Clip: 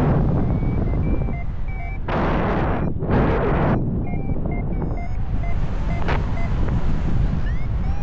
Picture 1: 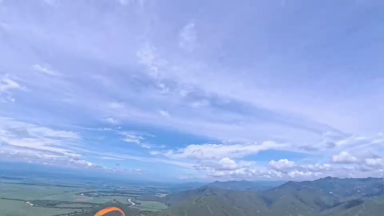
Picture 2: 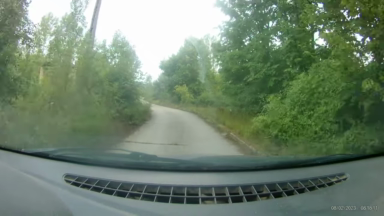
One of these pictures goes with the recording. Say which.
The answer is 1